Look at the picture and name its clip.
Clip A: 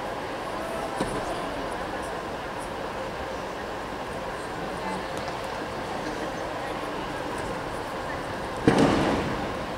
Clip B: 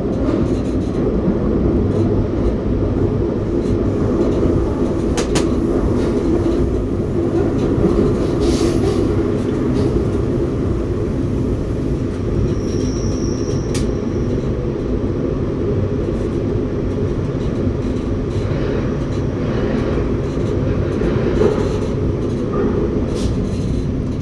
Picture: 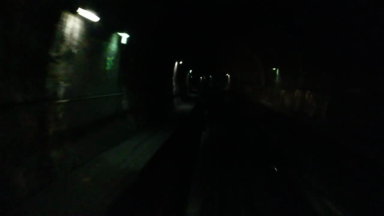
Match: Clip B